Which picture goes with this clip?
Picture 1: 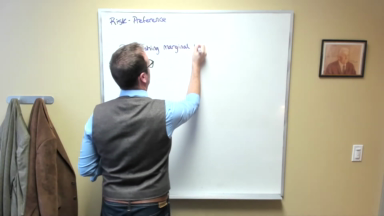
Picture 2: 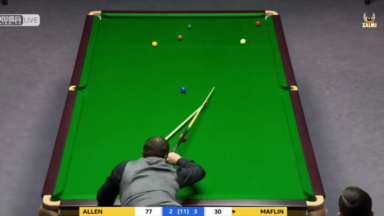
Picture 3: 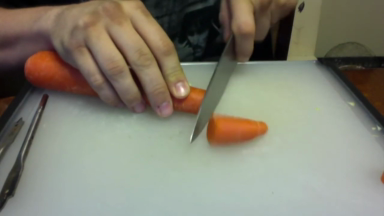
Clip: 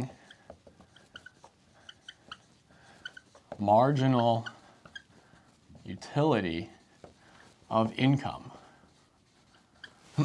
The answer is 1